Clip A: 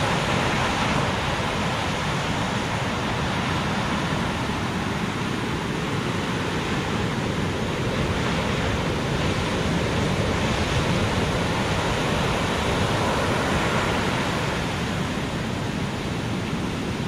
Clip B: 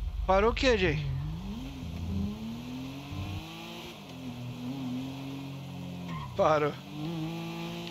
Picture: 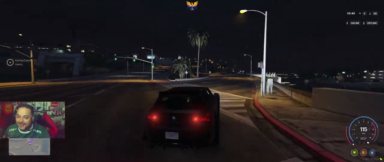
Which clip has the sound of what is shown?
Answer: B